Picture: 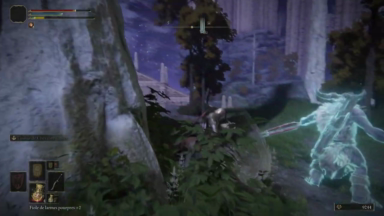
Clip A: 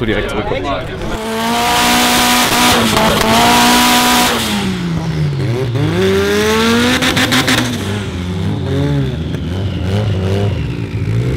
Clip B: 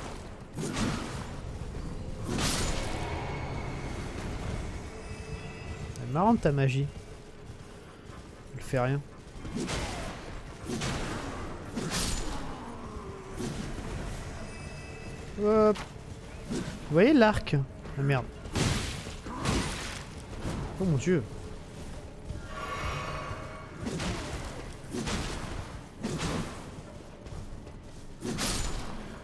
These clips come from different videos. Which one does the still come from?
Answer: B